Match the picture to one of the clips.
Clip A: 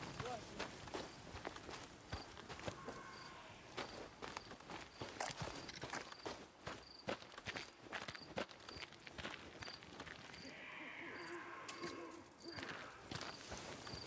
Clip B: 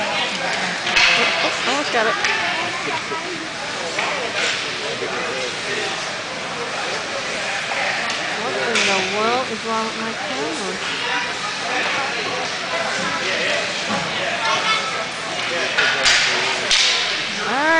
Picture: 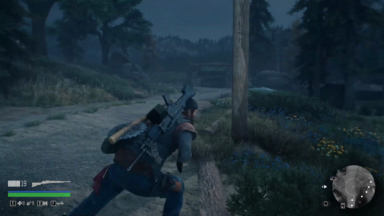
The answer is A